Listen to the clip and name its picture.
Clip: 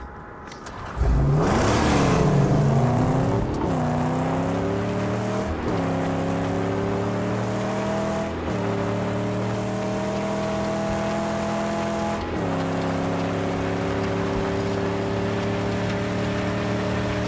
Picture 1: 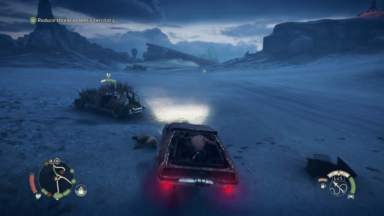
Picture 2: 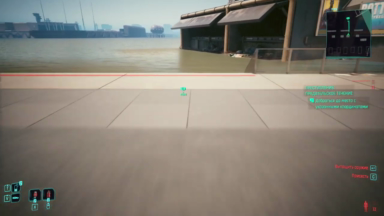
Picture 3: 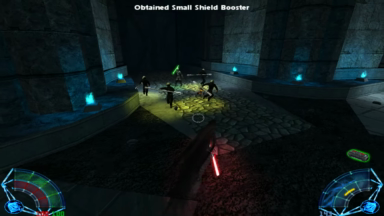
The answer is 1